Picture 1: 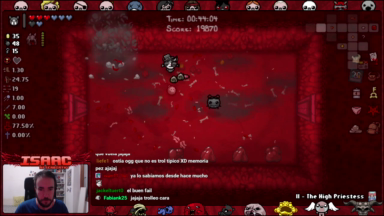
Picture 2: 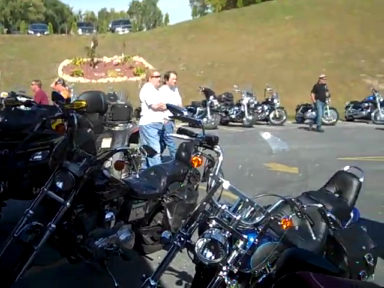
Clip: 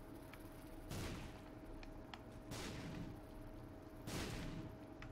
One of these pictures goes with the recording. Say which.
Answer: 1